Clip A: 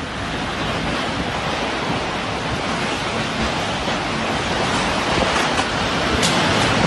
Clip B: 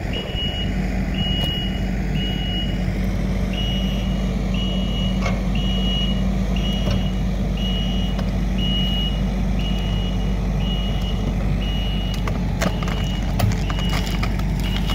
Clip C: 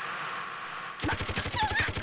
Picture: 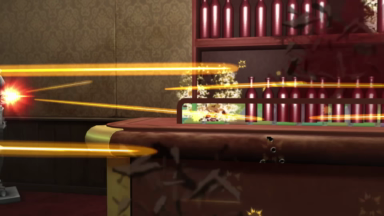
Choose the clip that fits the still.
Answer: C